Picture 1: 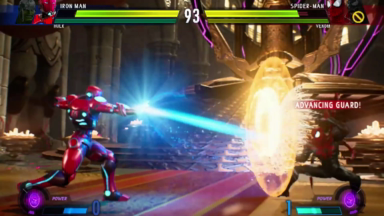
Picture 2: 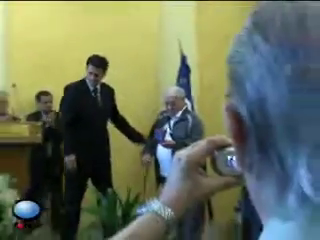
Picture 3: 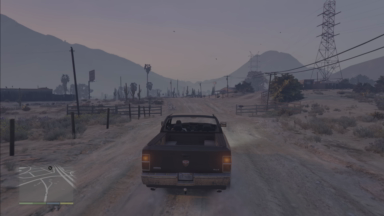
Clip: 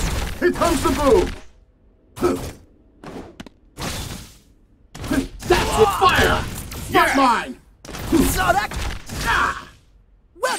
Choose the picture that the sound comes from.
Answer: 1